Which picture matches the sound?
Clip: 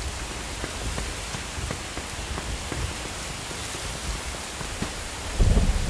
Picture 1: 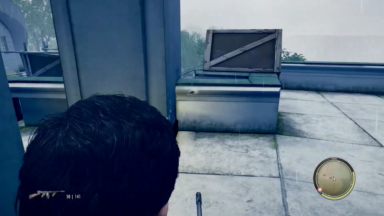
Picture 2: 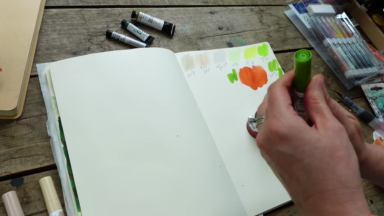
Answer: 1